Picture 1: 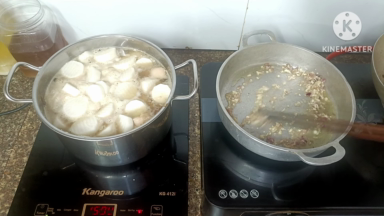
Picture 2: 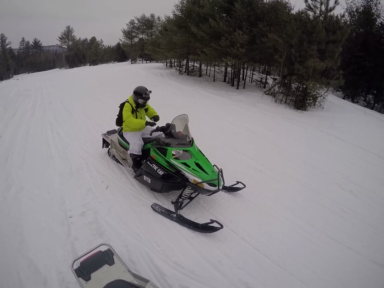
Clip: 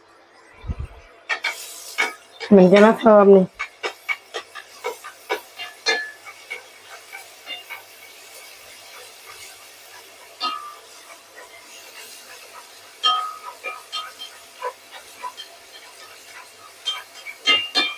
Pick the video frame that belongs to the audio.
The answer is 1